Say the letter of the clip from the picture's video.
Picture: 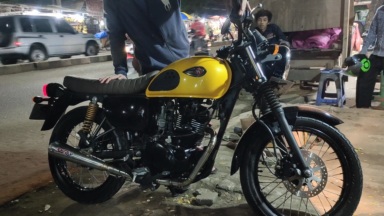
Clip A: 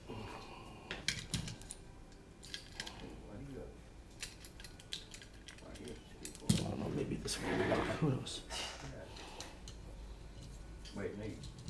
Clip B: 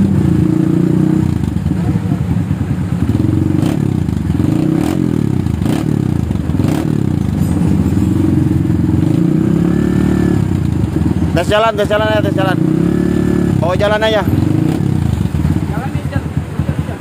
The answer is B